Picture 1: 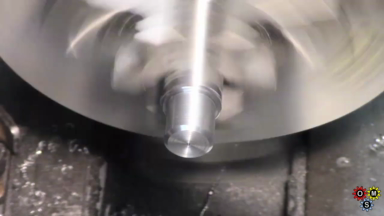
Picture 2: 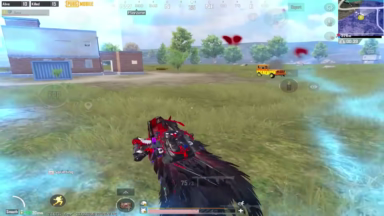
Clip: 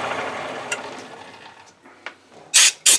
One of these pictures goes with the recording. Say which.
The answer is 1